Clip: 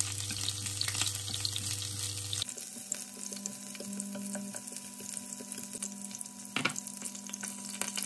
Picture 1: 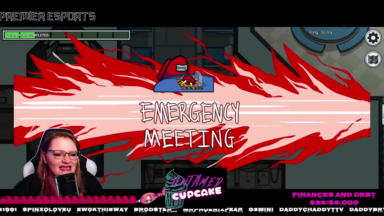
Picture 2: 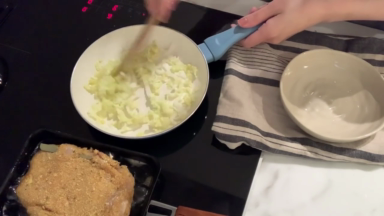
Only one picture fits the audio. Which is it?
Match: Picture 2